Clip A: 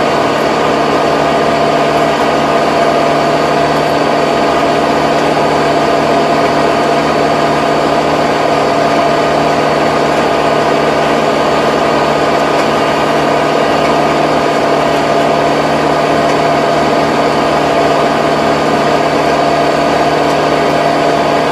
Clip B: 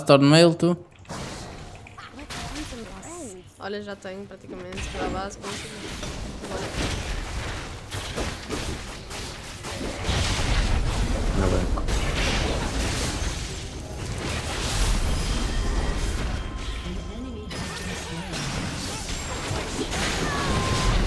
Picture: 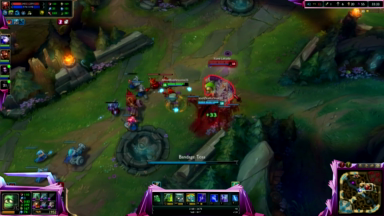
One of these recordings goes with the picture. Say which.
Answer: B